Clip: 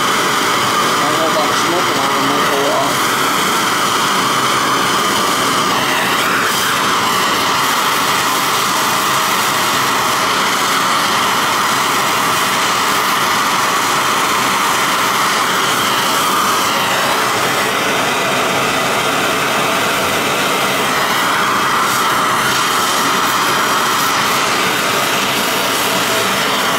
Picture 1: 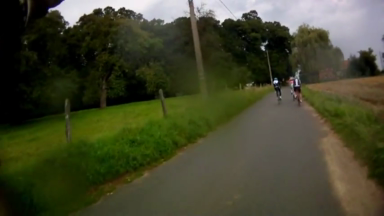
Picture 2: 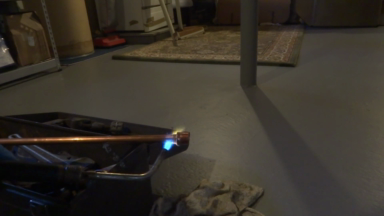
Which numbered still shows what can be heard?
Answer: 2